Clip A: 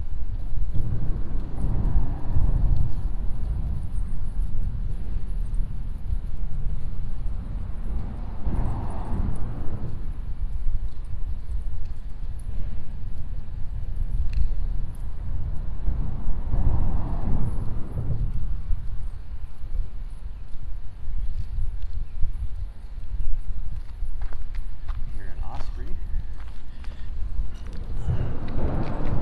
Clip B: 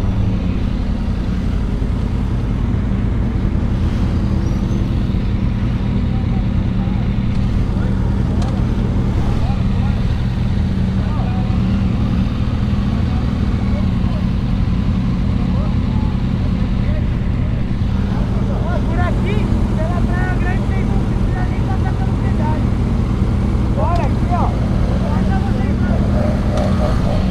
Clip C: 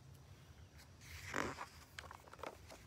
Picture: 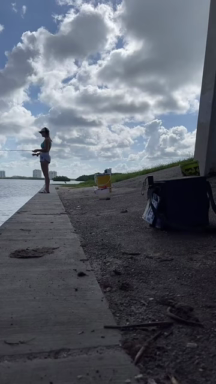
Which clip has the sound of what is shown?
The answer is A